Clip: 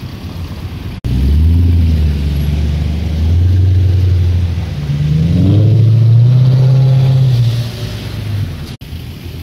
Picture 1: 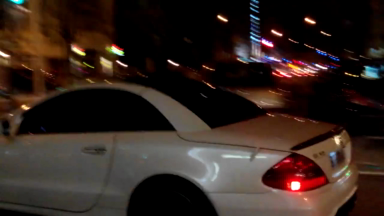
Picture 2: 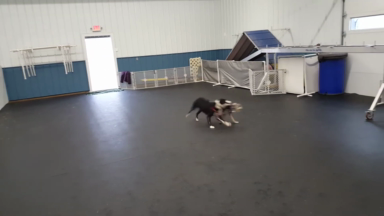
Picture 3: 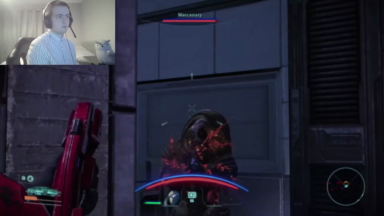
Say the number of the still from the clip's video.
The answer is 1